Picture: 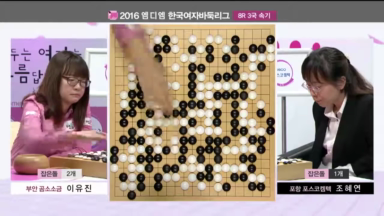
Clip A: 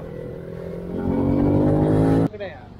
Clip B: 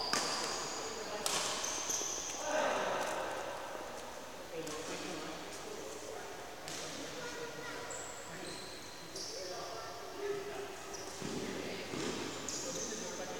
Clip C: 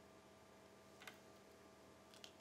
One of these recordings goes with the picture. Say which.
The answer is C